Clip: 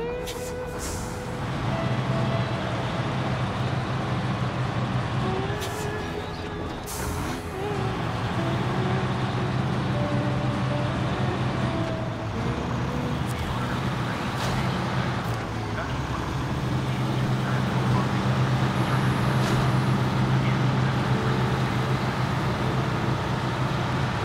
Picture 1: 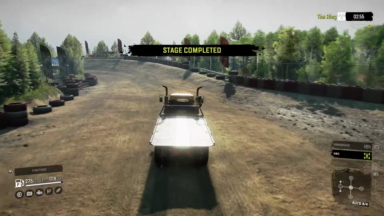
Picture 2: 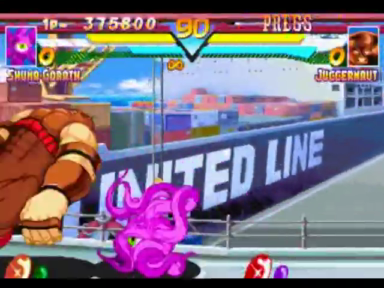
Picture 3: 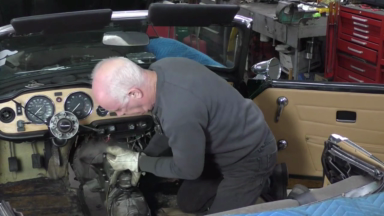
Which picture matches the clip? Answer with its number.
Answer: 1